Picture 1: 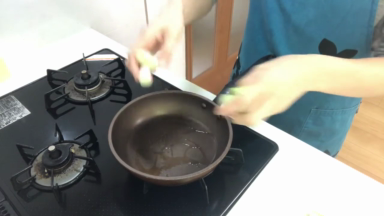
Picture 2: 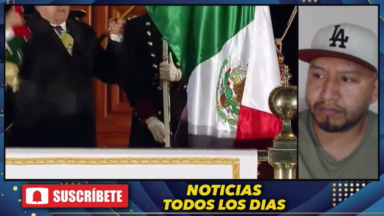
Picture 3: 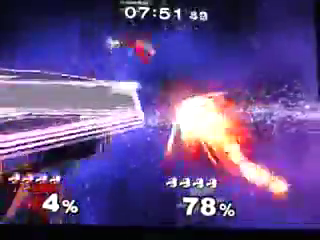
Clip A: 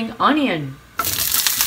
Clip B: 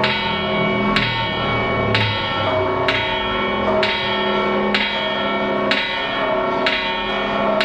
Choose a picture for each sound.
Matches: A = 1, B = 2